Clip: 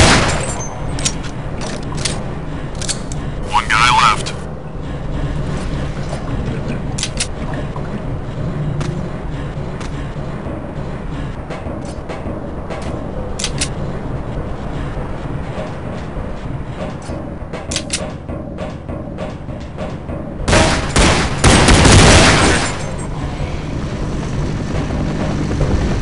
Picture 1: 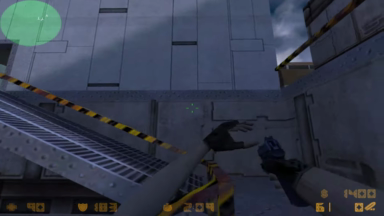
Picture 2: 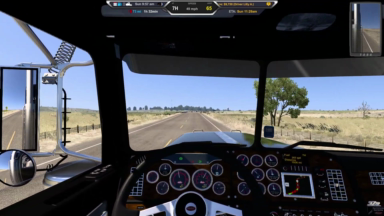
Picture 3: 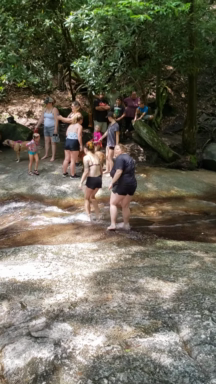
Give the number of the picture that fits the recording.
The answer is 1